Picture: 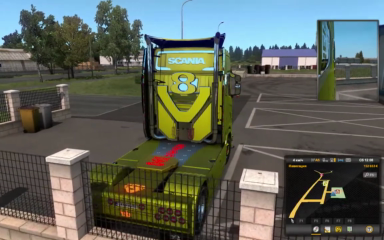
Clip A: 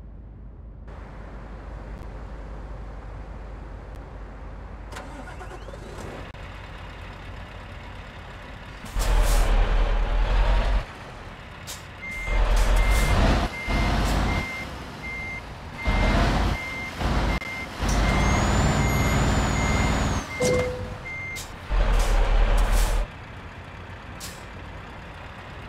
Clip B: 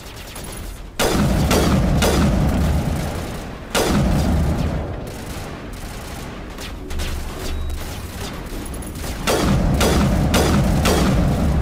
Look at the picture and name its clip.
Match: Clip A